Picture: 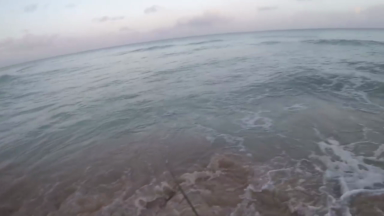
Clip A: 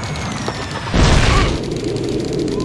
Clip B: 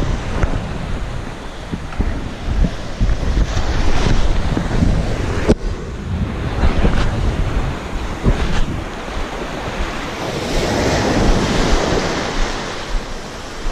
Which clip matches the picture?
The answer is B